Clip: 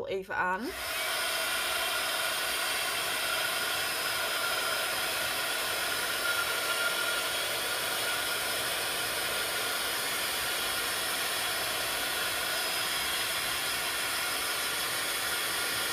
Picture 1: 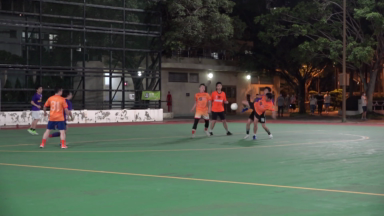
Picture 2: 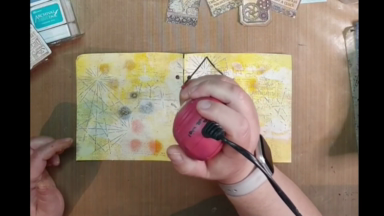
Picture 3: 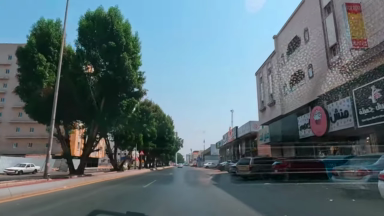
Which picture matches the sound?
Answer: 2